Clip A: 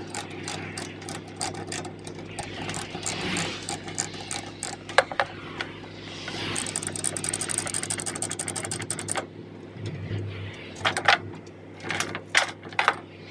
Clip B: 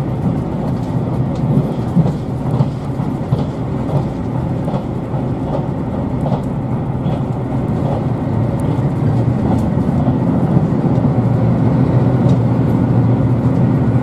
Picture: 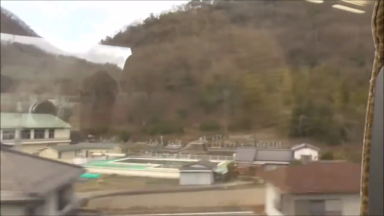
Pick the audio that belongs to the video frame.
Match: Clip B